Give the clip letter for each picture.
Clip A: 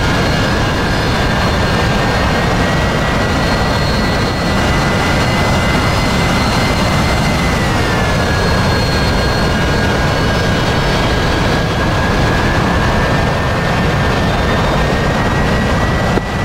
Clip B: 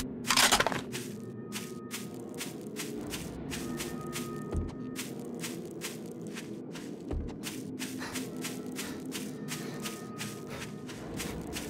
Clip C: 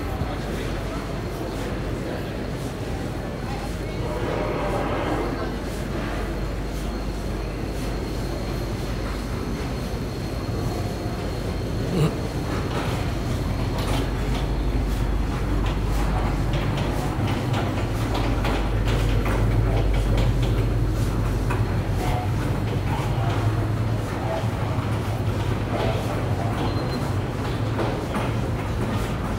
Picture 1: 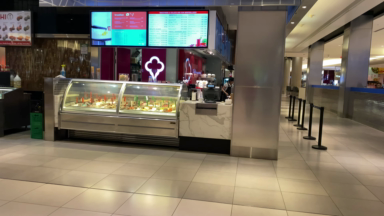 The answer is C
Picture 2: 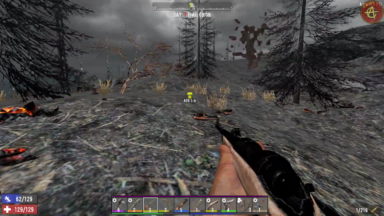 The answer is B